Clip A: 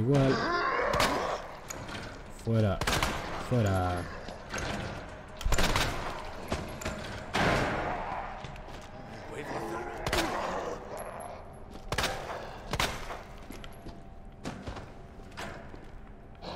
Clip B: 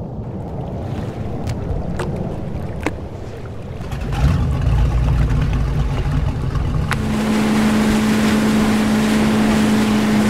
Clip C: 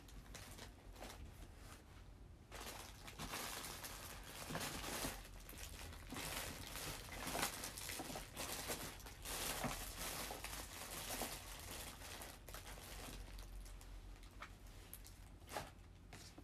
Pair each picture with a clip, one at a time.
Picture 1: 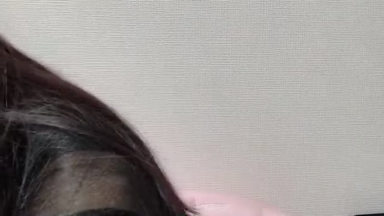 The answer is C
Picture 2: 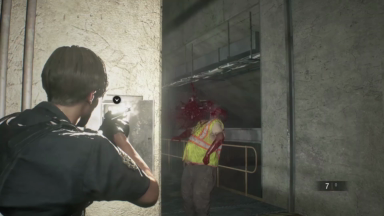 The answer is A